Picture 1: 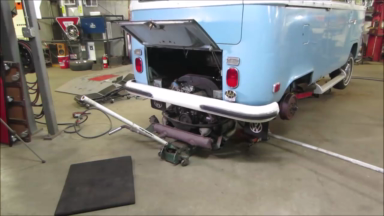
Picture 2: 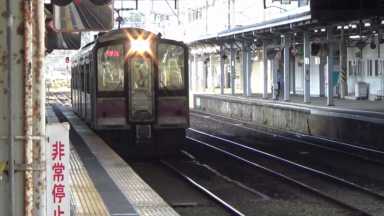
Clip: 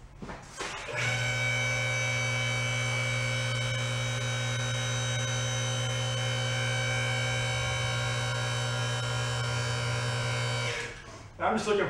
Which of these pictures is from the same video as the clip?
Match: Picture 1